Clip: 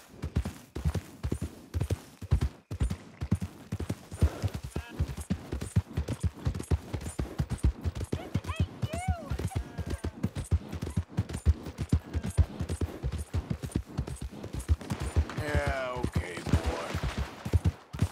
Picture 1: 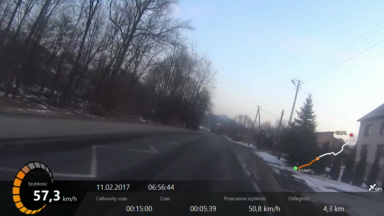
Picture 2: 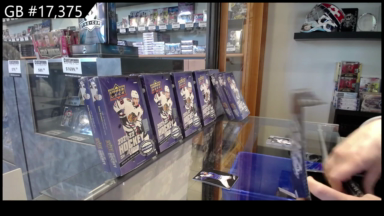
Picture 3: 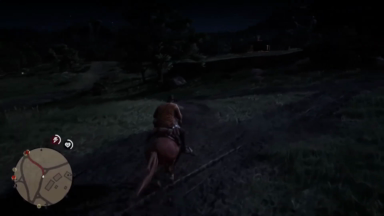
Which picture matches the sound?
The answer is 3